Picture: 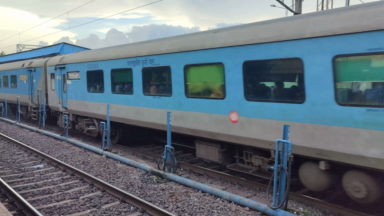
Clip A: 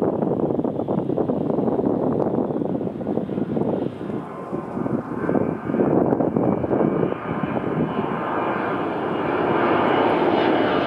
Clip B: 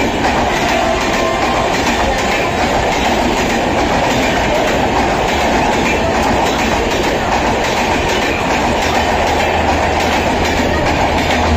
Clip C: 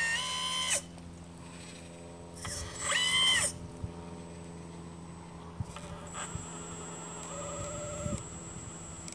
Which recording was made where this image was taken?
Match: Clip B